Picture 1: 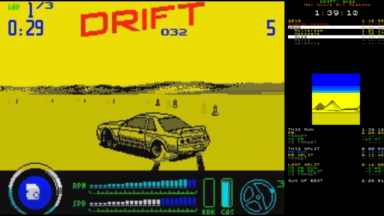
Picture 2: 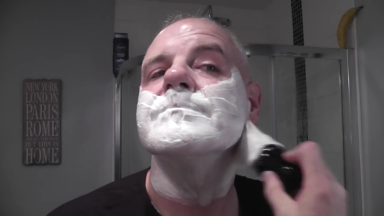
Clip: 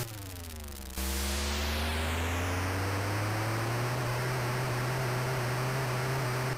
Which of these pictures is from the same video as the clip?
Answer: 1